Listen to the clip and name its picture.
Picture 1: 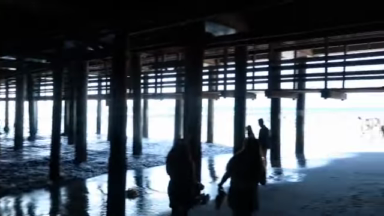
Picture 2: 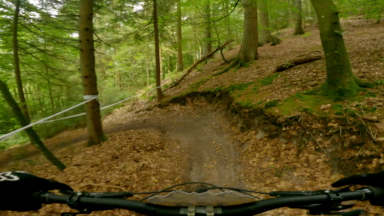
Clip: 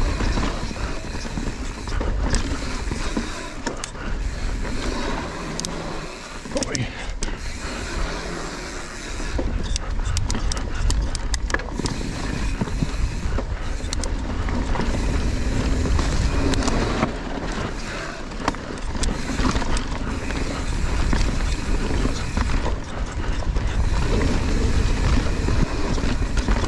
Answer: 2